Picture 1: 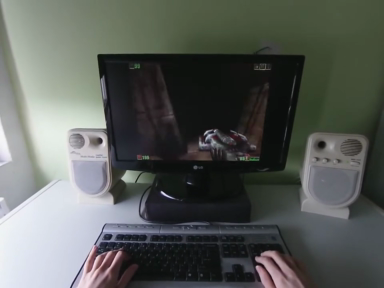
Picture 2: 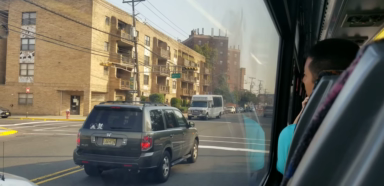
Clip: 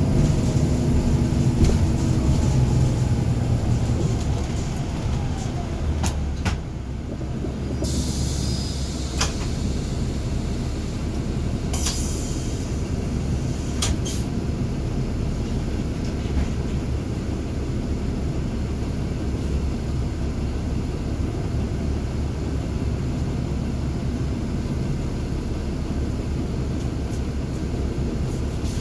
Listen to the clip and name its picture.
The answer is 2